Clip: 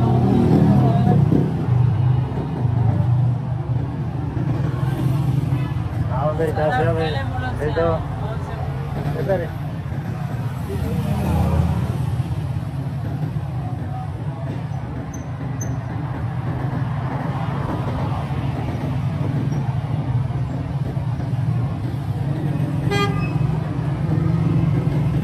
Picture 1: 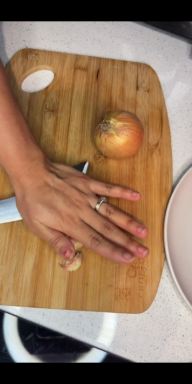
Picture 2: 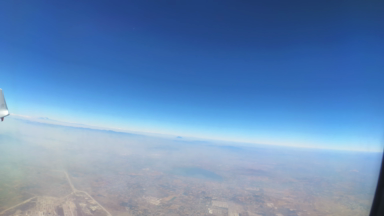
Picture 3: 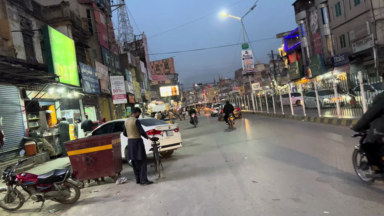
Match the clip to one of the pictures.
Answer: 3